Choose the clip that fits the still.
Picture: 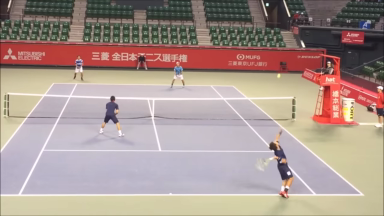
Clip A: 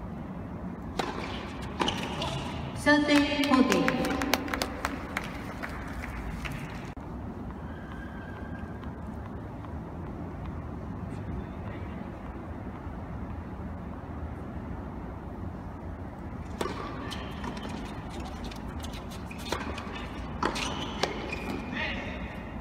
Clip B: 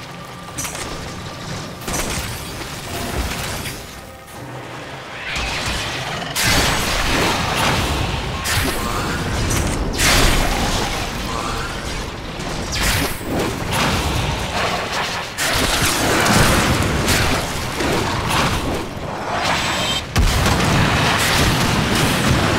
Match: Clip A